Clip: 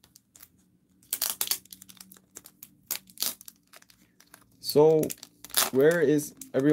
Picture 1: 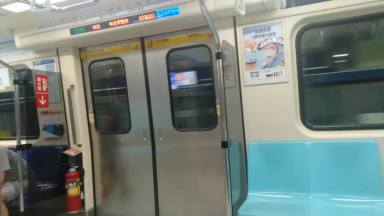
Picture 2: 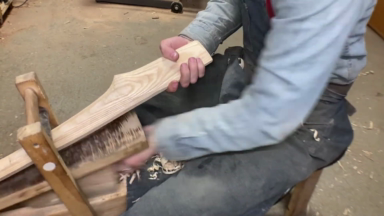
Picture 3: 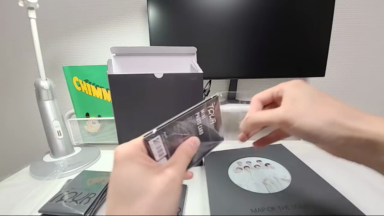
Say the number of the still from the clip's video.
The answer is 3